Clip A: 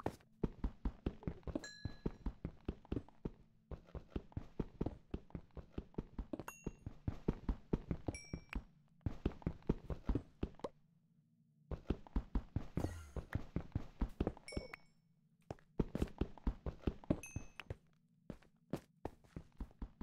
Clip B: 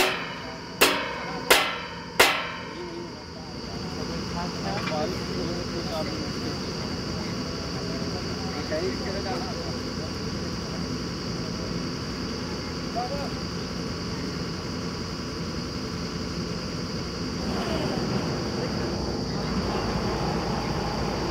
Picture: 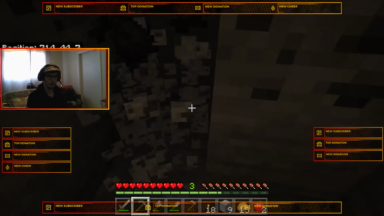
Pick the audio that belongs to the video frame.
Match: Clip A